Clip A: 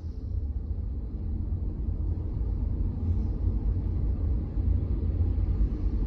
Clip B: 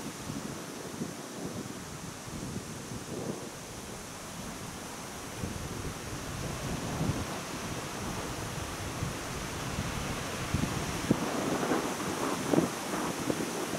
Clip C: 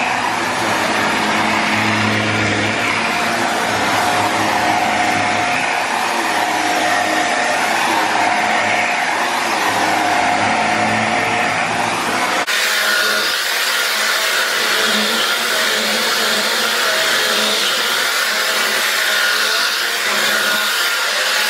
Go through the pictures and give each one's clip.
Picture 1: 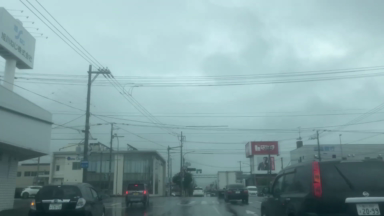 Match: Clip A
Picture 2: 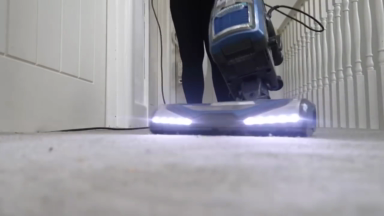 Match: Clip C